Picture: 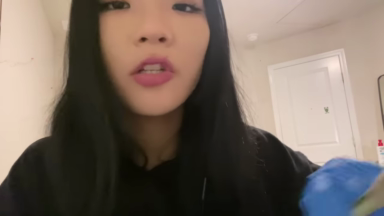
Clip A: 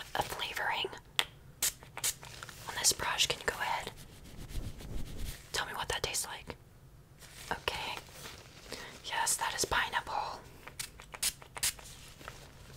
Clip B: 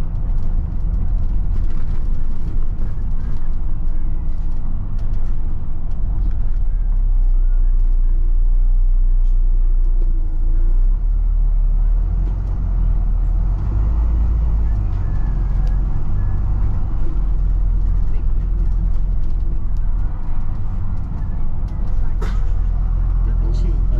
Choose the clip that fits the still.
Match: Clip A